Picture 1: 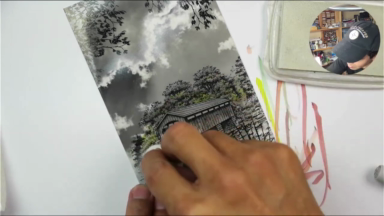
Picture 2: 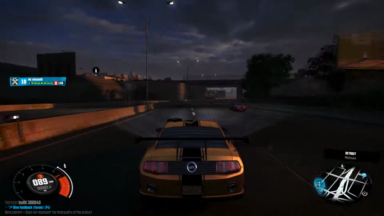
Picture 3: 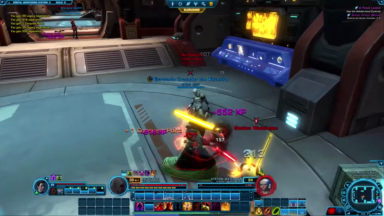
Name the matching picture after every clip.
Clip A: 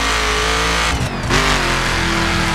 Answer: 2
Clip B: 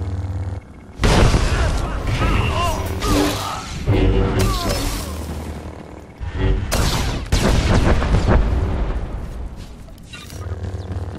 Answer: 3